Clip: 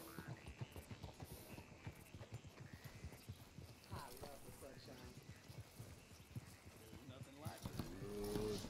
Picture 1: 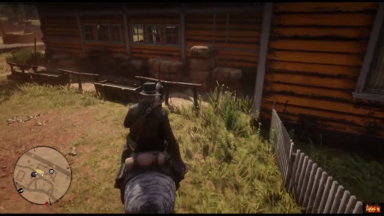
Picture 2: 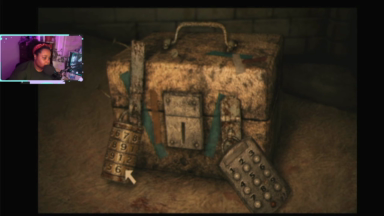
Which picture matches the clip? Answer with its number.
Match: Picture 1